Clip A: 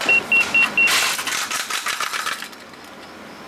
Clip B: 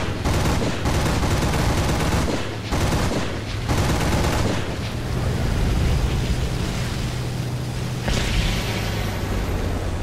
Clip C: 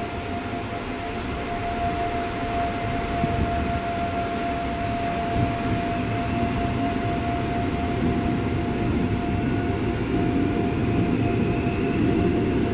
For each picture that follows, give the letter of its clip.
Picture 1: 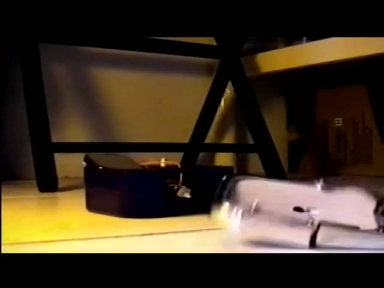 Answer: A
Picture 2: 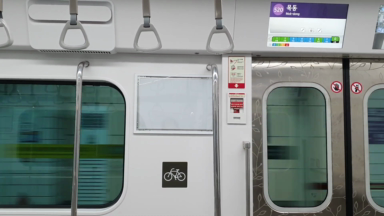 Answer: C